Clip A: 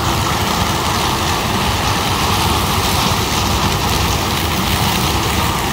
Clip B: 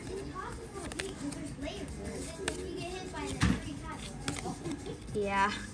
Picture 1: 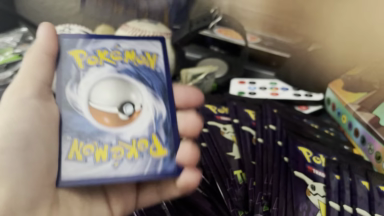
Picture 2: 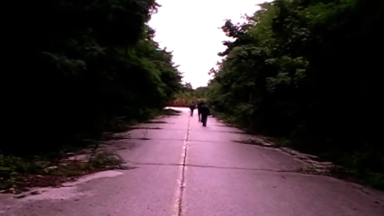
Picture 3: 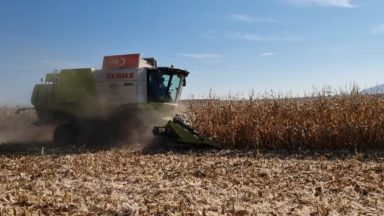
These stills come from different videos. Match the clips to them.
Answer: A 3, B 1